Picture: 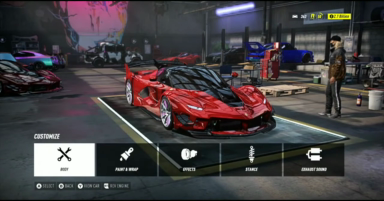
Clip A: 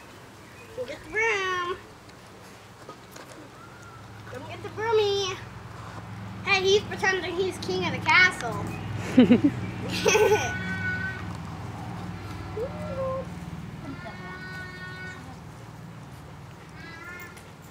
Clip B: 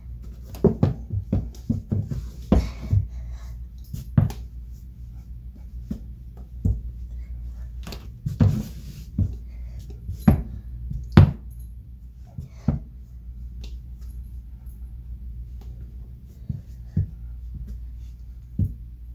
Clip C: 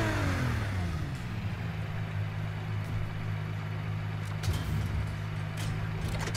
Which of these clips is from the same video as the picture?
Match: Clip C